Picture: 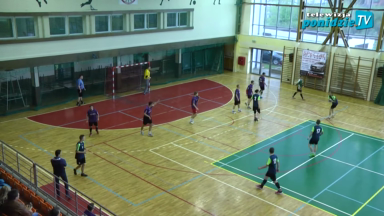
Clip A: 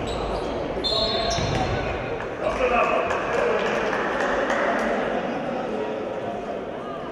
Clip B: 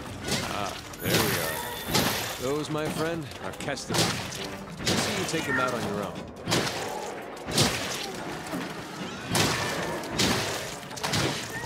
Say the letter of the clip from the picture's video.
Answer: A